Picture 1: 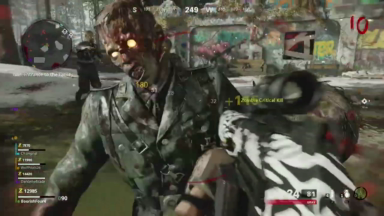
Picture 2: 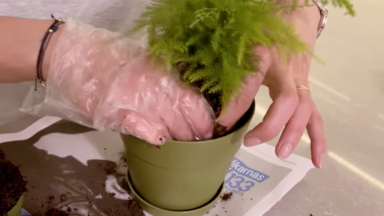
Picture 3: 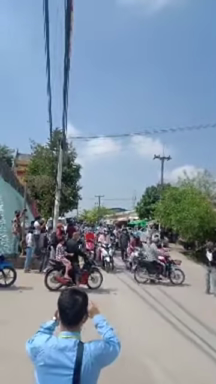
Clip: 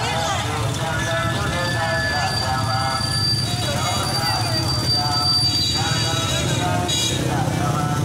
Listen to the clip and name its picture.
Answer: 3